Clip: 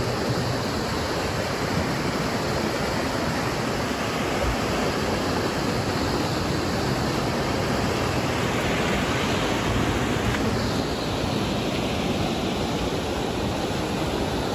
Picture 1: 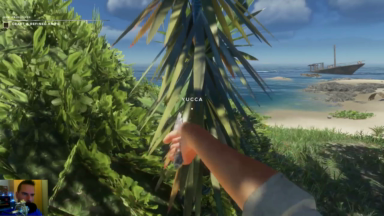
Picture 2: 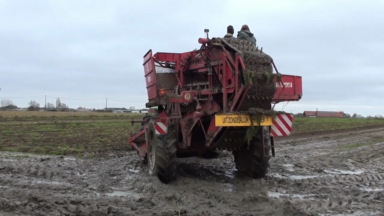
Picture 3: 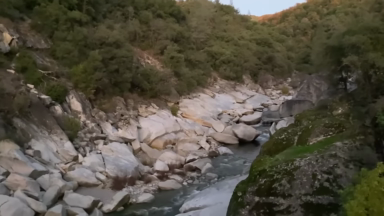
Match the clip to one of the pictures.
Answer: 3